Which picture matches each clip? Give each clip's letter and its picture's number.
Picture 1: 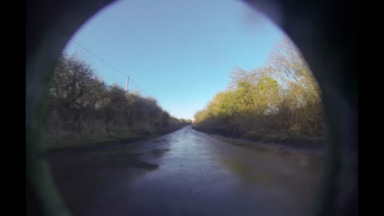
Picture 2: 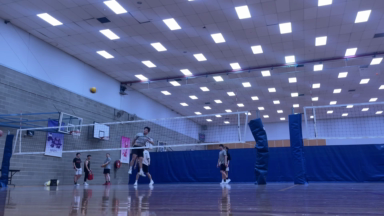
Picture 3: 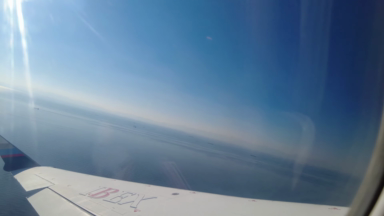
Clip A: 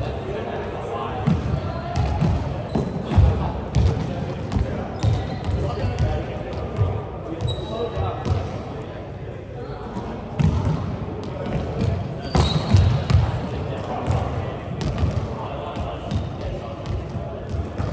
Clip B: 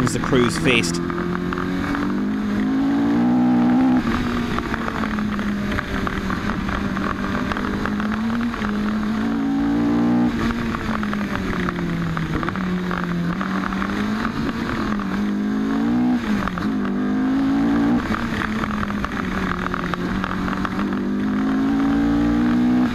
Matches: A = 2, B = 1